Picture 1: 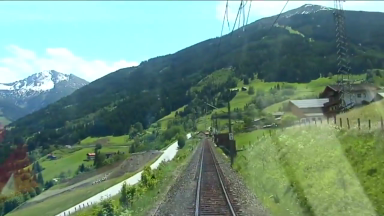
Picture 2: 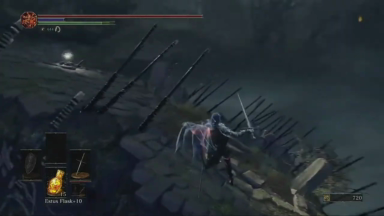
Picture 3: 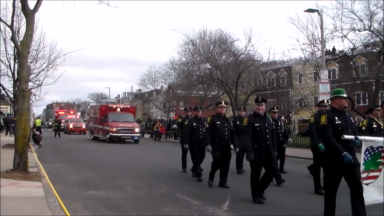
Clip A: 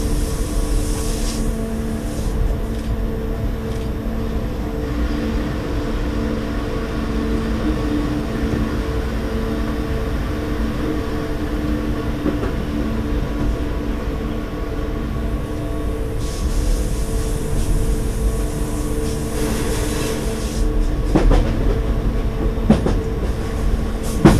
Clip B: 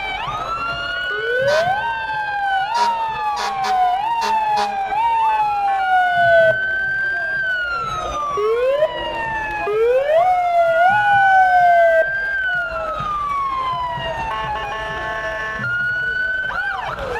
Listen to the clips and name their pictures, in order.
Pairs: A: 1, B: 3